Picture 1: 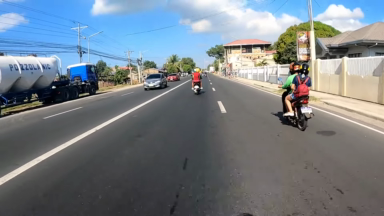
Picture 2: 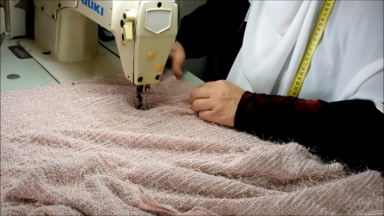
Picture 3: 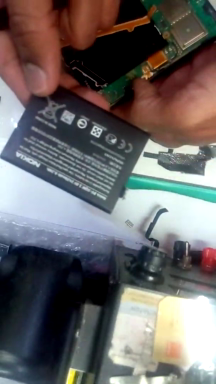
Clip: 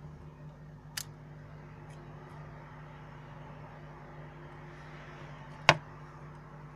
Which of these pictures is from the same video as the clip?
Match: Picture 3